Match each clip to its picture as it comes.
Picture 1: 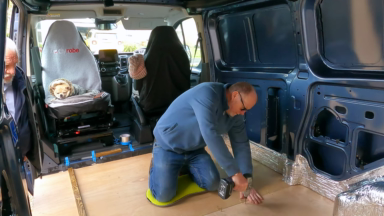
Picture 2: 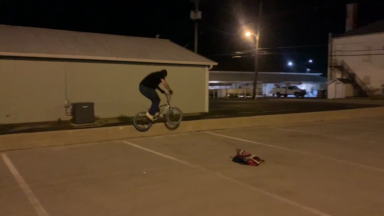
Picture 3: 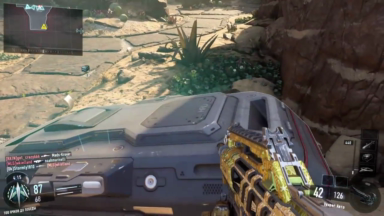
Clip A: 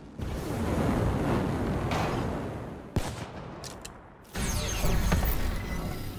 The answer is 3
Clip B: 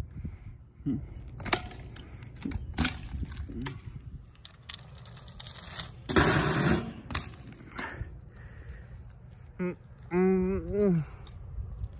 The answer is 2